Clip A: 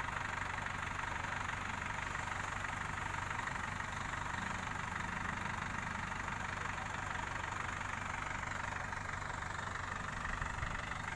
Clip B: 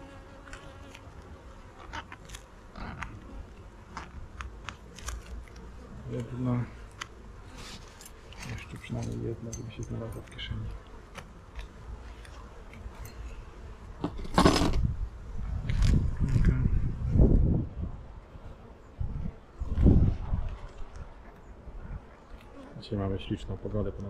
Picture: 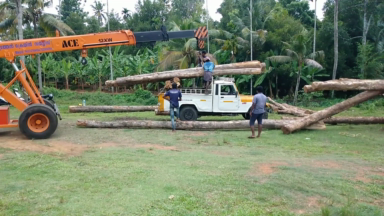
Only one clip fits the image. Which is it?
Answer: A